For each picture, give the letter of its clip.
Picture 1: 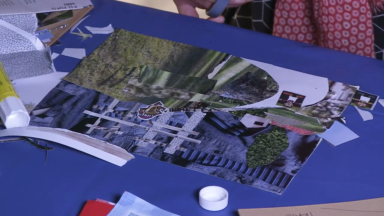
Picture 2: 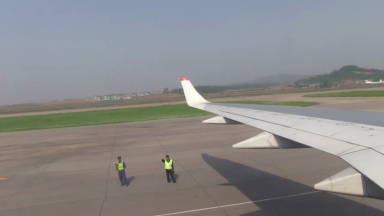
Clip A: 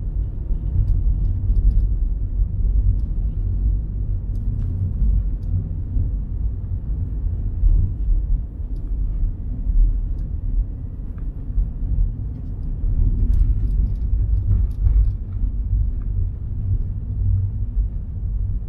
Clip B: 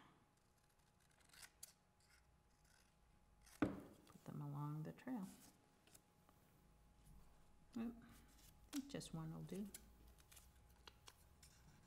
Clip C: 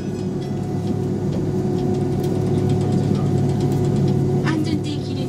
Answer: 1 B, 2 C